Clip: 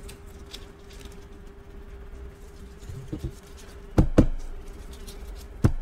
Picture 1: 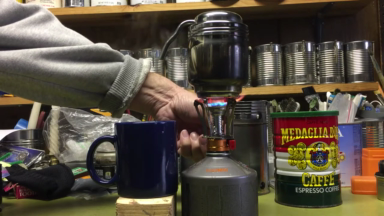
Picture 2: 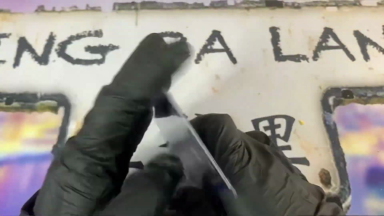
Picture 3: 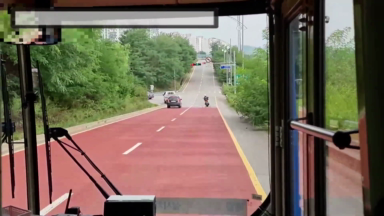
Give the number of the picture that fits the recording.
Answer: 2